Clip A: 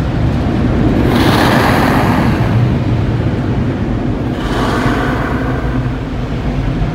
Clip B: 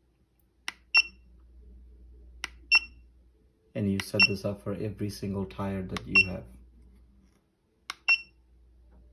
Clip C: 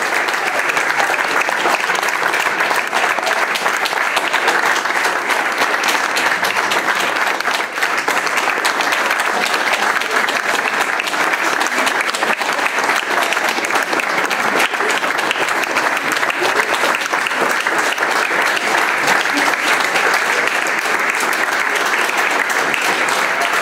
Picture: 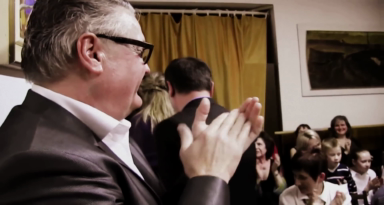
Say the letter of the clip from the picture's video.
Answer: C